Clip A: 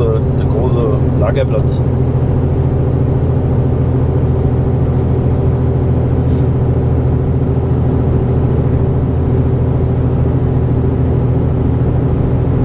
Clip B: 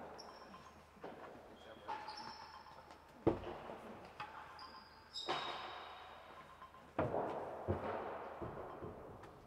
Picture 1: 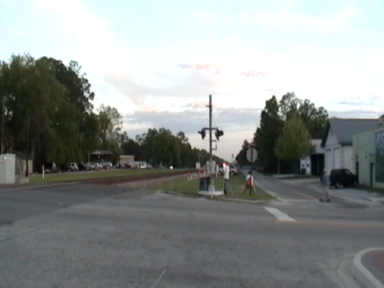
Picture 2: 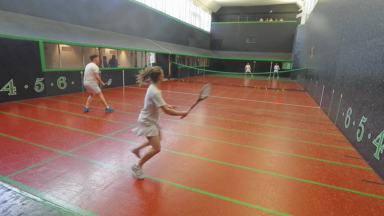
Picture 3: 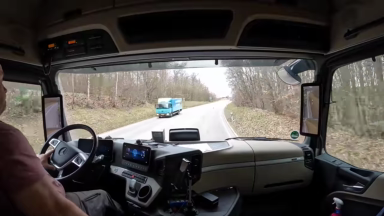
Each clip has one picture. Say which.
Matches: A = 3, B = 2